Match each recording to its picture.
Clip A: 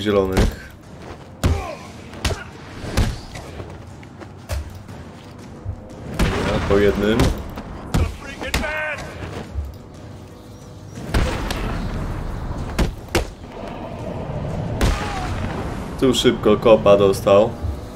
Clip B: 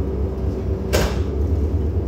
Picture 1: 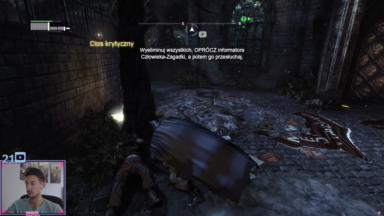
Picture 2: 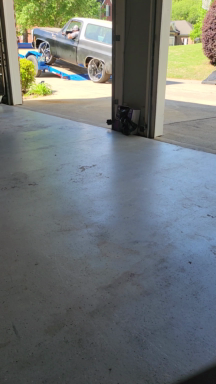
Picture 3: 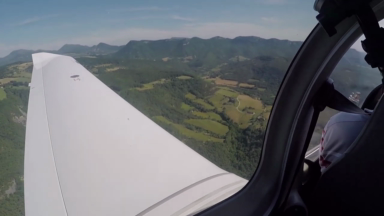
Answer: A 1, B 2